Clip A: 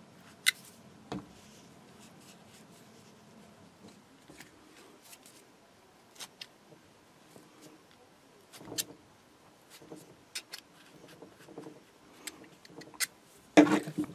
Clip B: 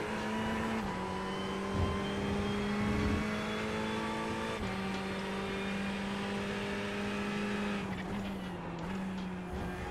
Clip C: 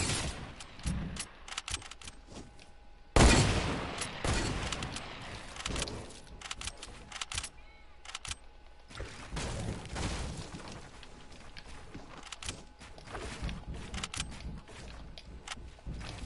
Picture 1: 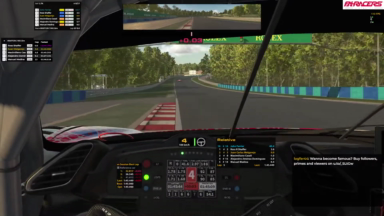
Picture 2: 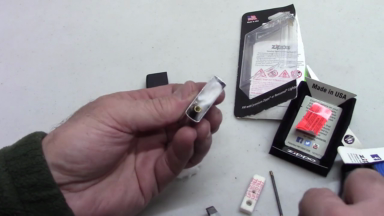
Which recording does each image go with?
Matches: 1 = B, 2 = A